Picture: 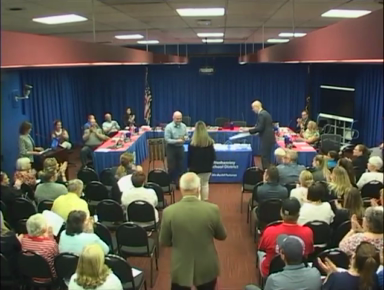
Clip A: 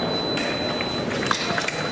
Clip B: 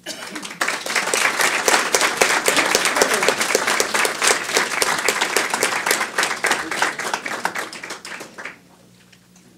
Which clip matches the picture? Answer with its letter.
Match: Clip B